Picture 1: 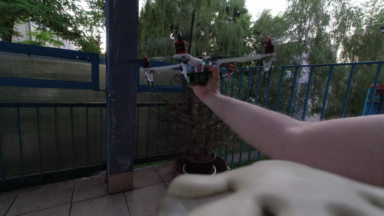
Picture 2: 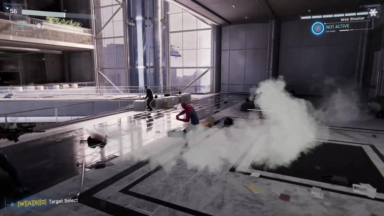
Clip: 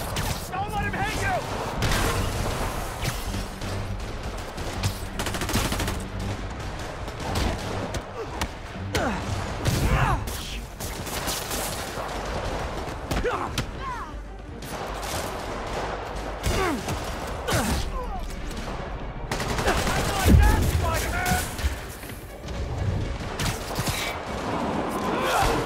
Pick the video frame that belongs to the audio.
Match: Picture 2